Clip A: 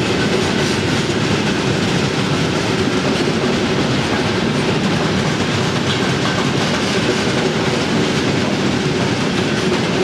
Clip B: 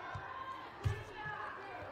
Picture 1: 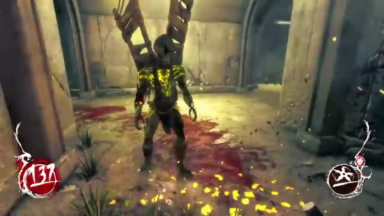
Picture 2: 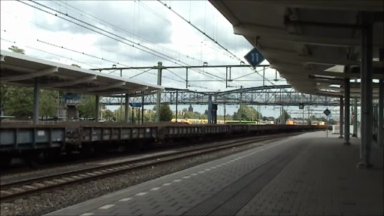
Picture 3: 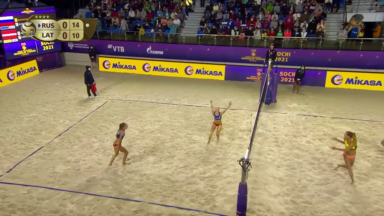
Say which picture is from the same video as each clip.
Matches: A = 2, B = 3